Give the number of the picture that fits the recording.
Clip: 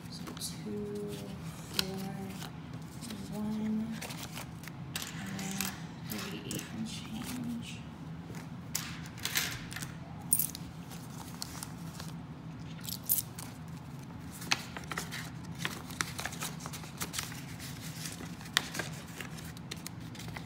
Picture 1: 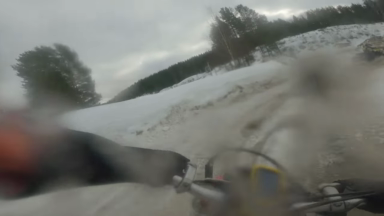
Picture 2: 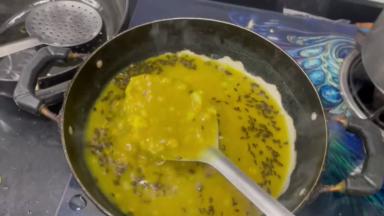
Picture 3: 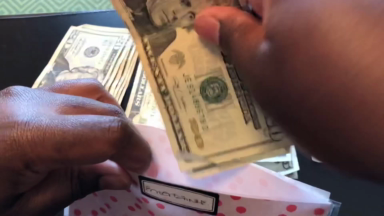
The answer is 3